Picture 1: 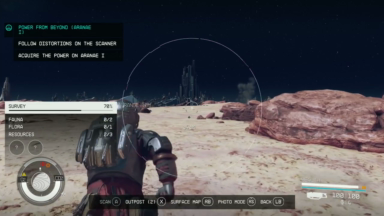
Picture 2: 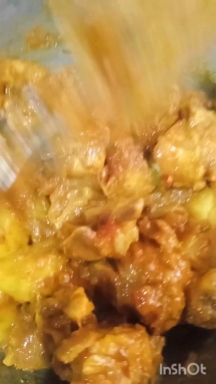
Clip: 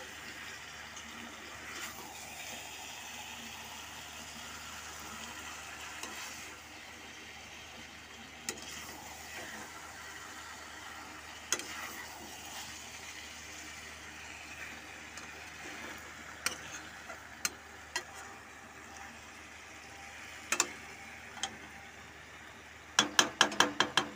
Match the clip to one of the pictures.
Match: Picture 2